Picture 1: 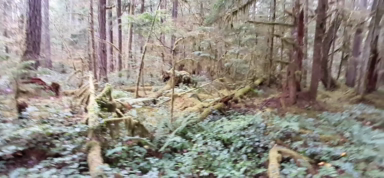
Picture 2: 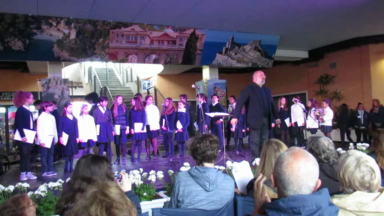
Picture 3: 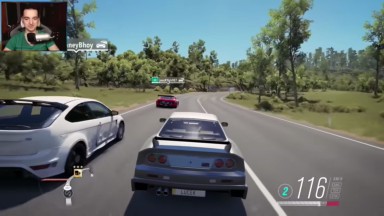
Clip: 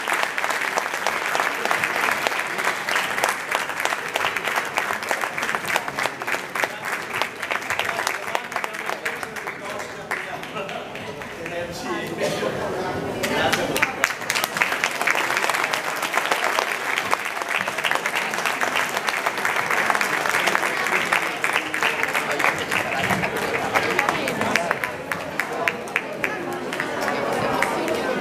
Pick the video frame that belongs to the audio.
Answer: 2